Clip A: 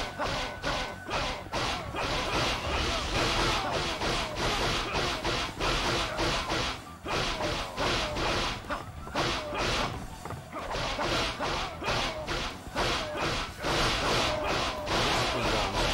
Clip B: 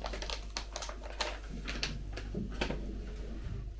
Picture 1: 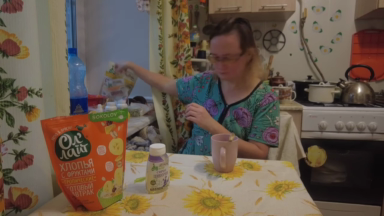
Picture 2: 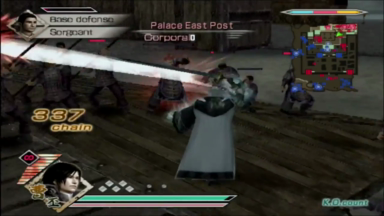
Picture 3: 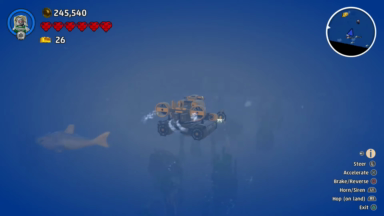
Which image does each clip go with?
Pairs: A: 2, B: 1